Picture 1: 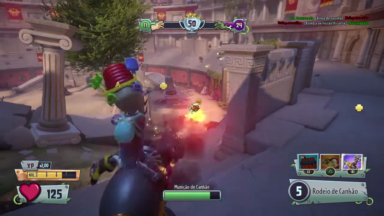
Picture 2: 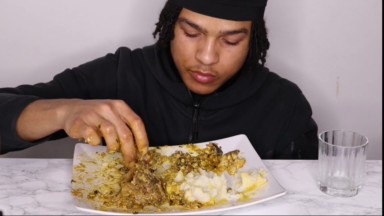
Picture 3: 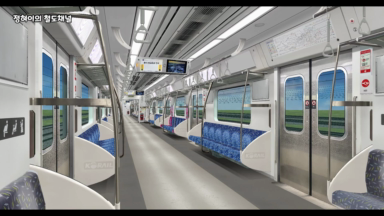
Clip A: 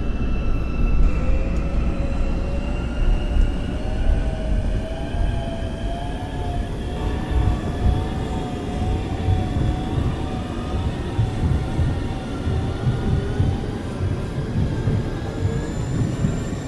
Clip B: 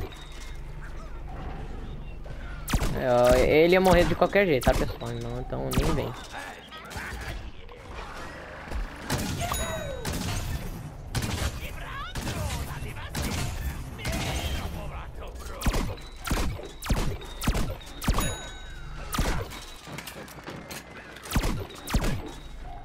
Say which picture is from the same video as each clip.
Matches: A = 3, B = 1